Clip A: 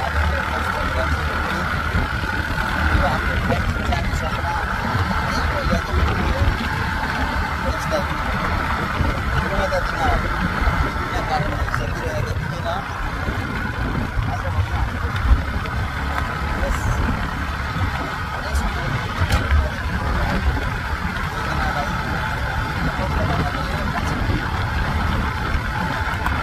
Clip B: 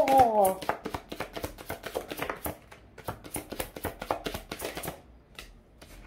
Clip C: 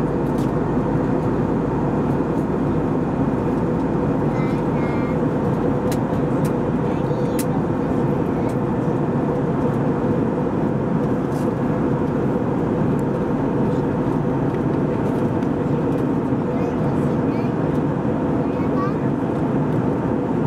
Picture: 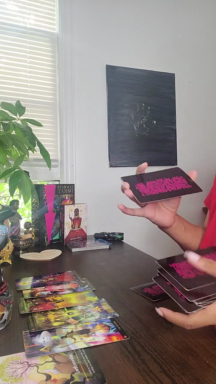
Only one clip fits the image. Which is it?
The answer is B